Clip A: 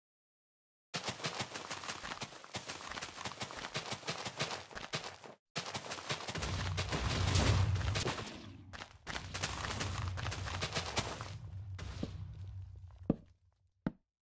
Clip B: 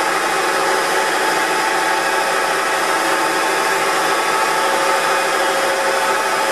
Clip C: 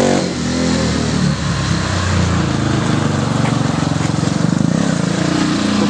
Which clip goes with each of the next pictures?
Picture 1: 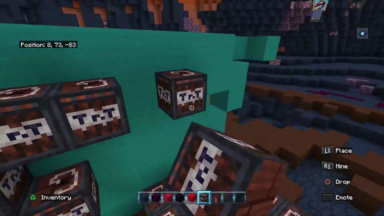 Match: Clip A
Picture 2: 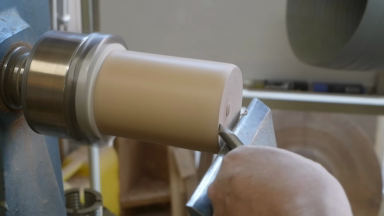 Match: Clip B